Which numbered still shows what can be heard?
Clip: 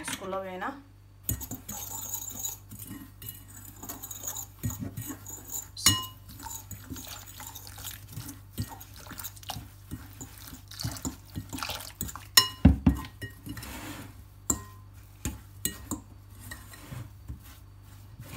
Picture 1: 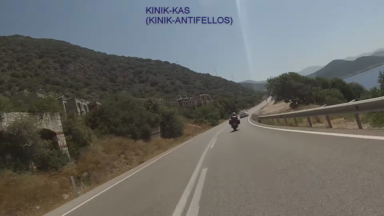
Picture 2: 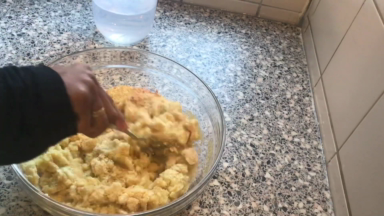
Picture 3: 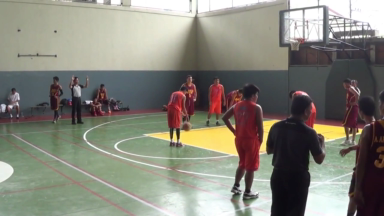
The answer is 2